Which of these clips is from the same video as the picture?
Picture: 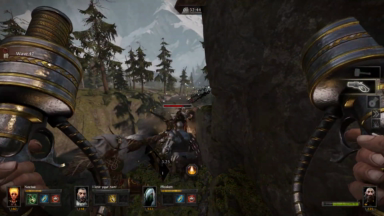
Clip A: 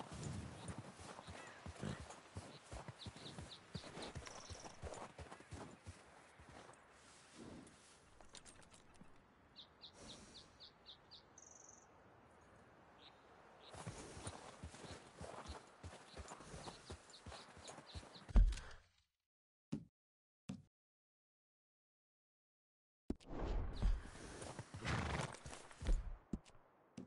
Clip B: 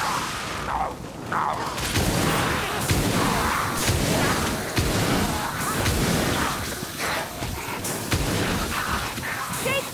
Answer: B